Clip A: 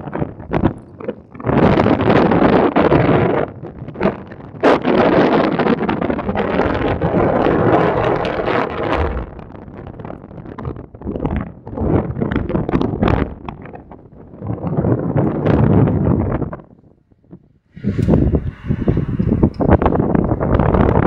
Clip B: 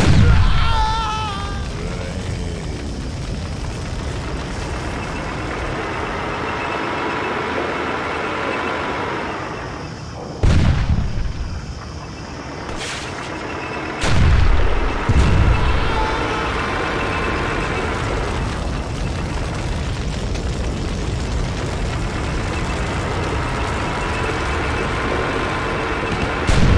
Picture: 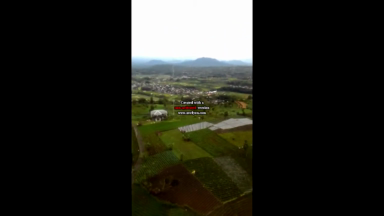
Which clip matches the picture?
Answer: A